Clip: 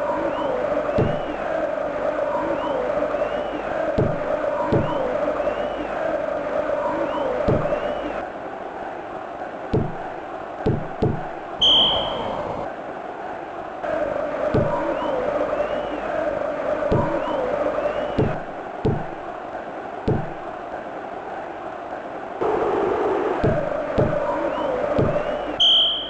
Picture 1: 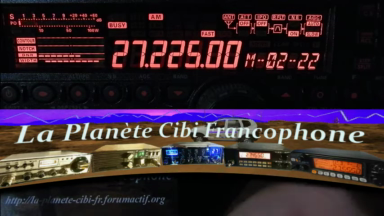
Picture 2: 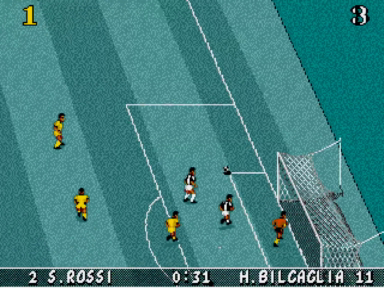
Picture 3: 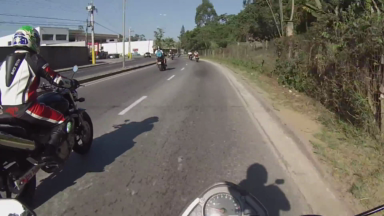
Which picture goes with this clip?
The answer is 2